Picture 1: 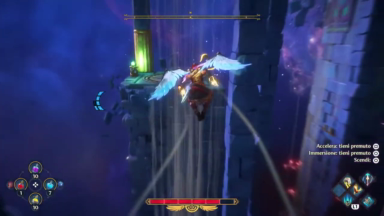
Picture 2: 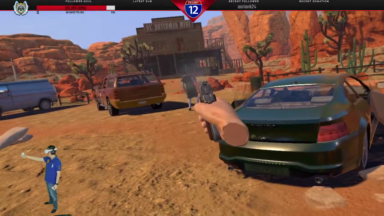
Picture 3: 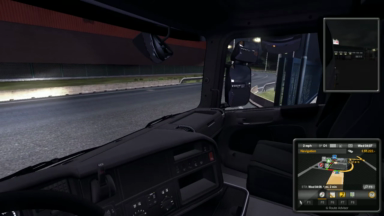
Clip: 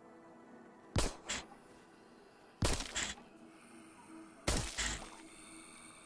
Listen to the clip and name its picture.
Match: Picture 2